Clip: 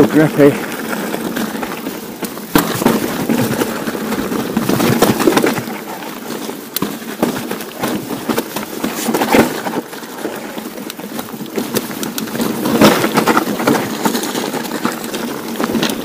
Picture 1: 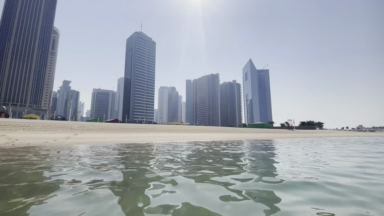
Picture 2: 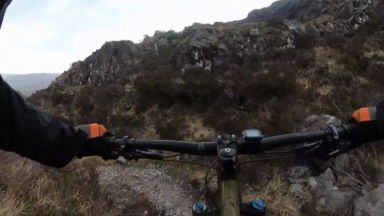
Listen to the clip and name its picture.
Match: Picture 2